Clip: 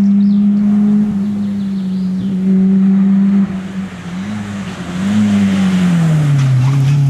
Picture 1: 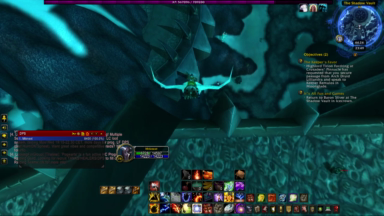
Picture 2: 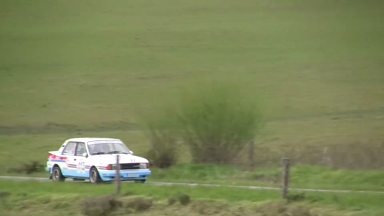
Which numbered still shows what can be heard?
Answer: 2